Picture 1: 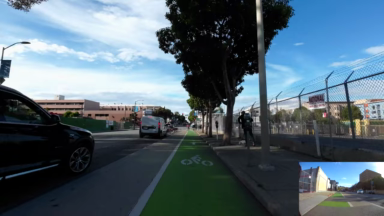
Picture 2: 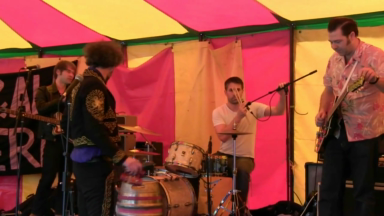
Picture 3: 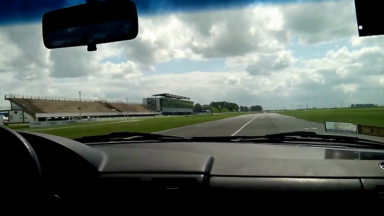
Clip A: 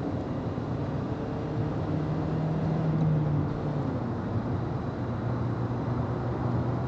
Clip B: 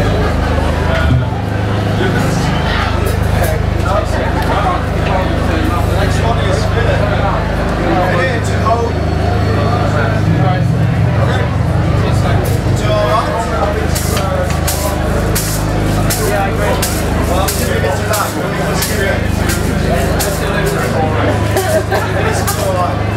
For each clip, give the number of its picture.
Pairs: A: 3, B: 2